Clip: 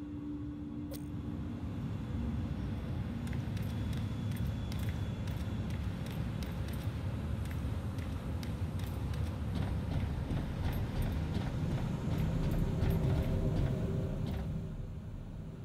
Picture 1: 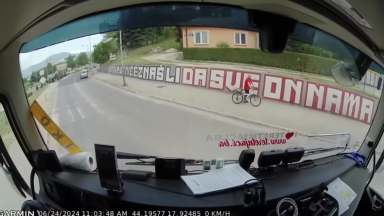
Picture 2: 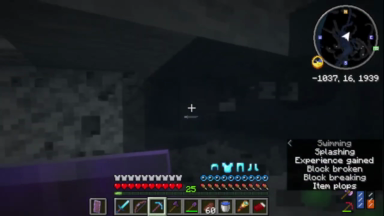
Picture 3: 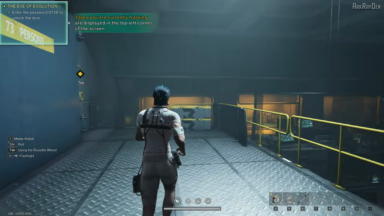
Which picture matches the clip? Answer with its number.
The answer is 3